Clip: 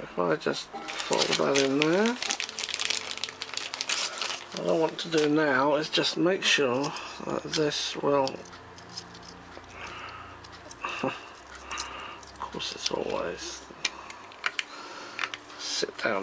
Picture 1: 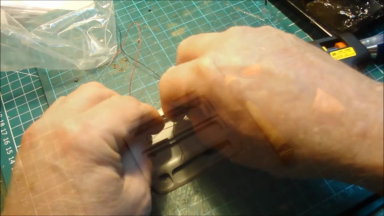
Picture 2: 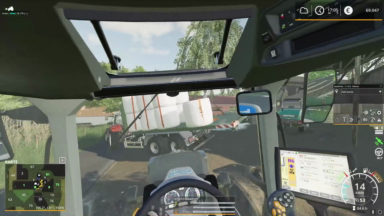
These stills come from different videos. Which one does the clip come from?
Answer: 1